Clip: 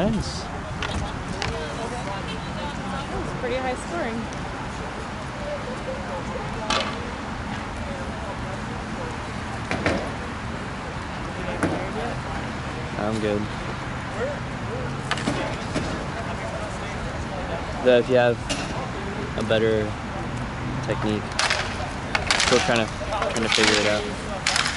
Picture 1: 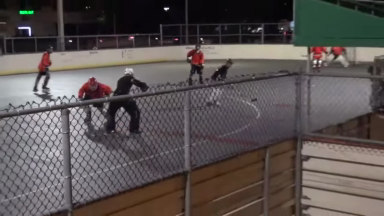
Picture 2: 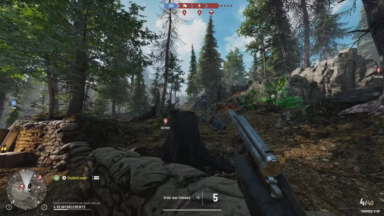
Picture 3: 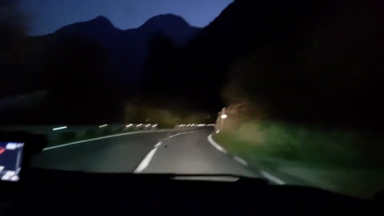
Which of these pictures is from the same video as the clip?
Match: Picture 1